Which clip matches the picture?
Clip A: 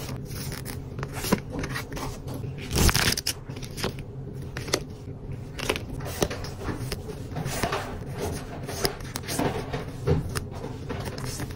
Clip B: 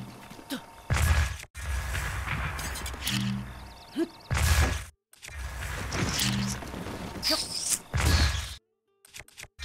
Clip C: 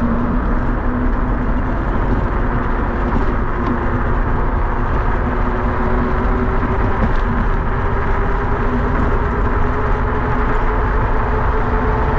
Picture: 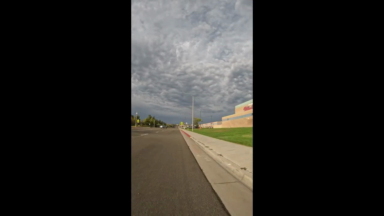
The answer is C